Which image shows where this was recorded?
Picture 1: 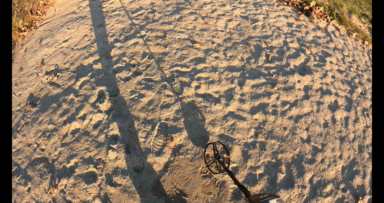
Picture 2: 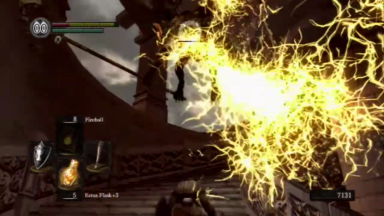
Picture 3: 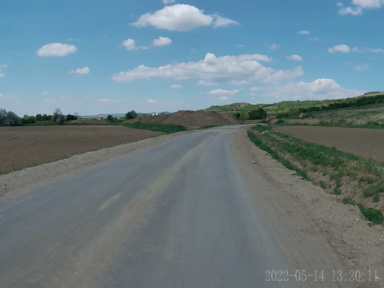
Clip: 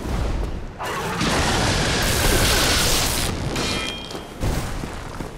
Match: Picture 2